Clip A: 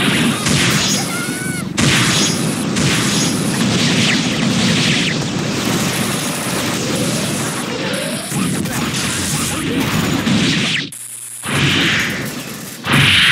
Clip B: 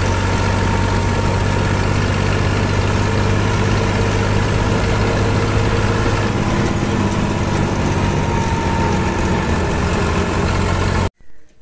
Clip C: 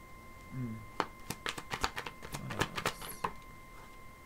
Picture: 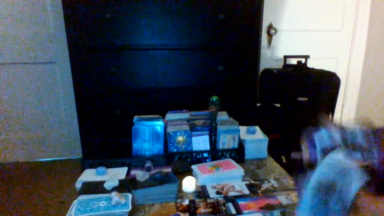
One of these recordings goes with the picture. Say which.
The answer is C